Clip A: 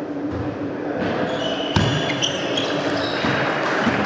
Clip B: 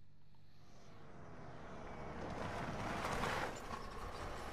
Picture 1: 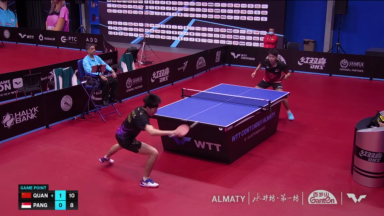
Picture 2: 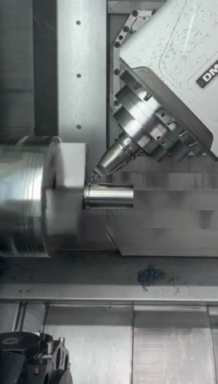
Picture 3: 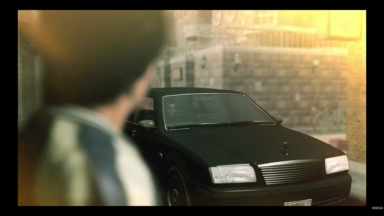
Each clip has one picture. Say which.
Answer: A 1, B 3